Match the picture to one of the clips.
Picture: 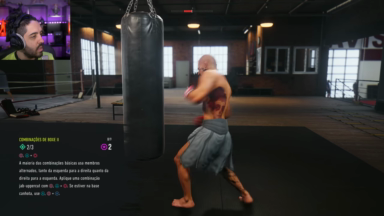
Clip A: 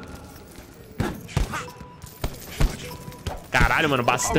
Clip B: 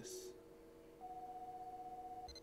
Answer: A